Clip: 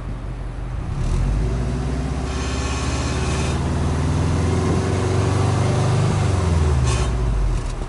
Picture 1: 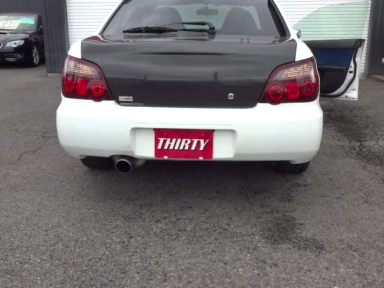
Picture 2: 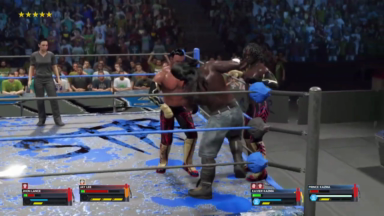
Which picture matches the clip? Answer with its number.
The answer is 1